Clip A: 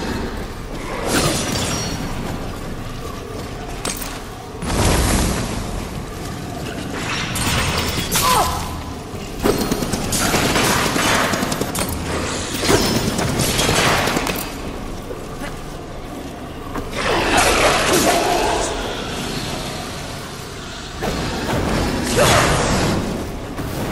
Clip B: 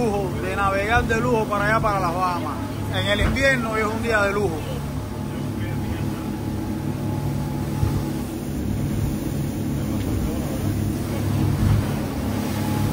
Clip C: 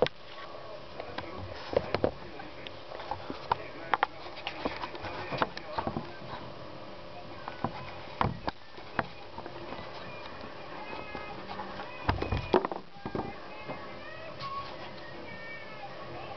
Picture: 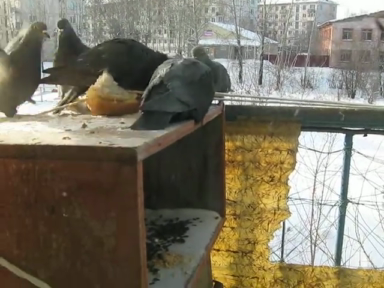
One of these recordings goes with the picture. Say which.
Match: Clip C